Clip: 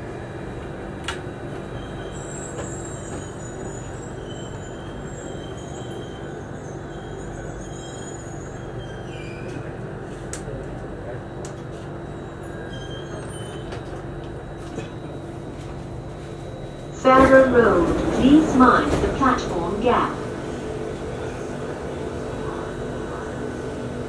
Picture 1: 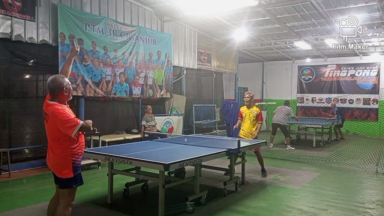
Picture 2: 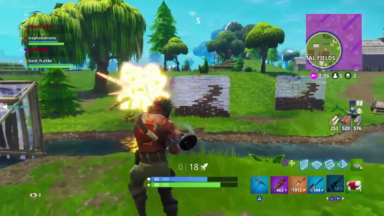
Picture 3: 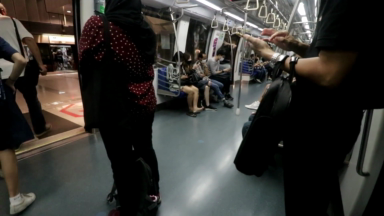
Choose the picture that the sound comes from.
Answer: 3